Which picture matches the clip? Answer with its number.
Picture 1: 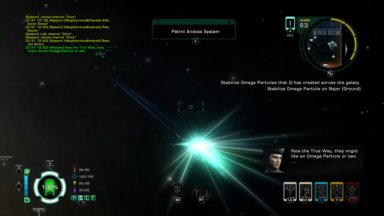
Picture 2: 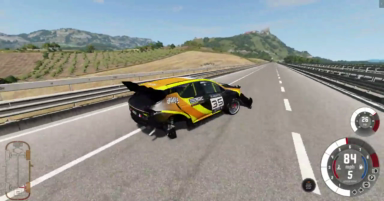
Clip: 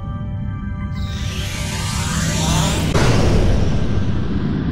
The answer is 1